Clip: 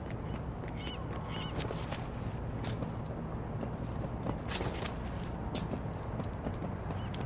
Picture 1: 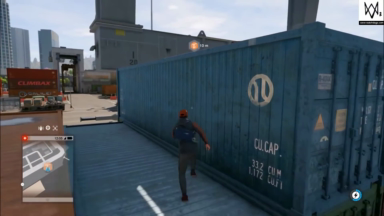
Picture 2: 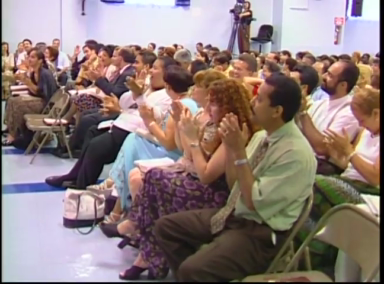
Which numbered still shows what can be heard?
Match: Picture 1